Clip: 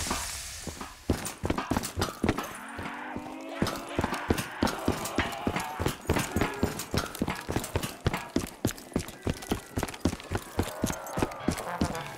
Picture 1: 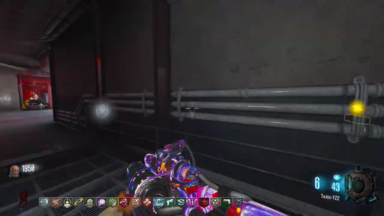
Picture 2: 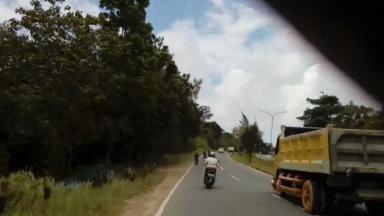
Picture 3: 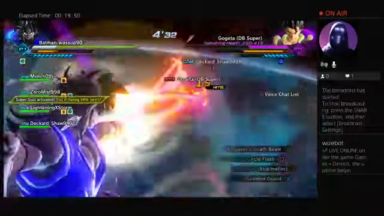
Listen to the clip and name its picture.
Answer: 1